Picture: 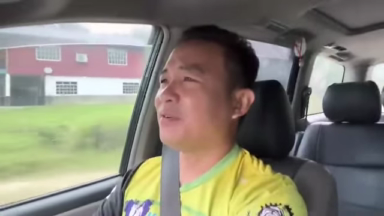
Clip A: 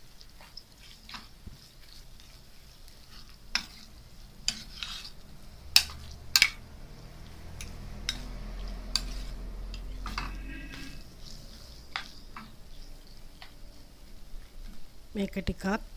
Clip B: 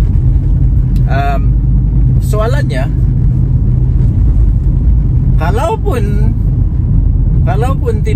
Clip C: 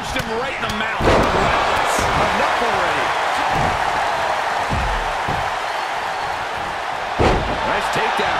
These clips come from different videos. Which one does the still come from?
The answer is B